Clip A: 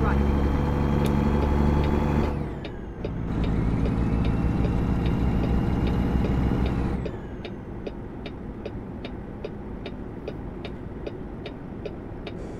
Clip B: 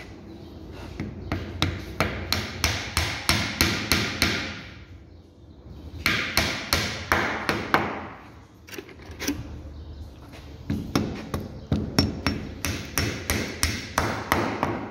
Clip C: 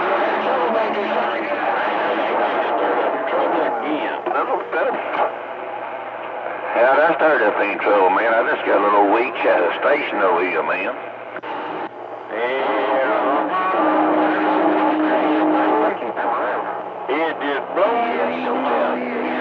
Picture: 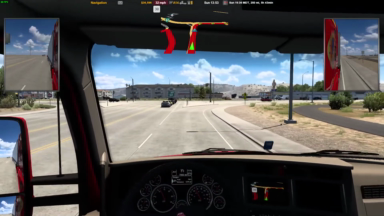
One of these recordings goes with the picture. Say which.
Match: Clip A